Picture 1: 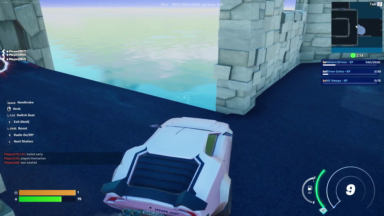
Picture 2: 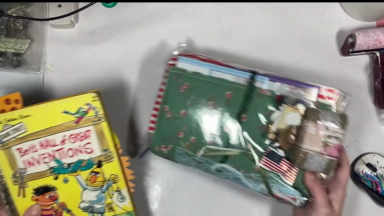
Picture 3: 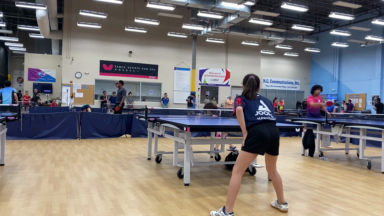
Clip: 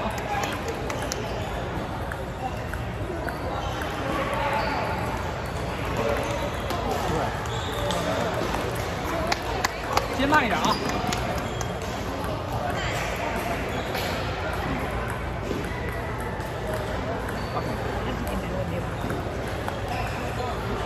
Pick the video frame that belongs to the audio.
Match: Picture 3